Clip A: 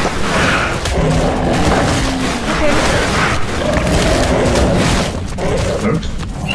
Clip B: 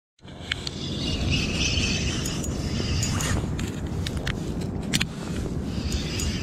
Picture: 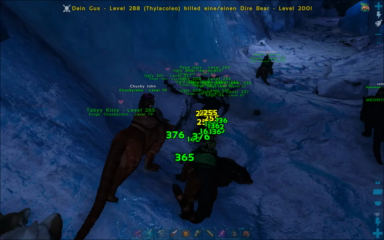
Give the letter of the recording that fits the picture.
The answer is A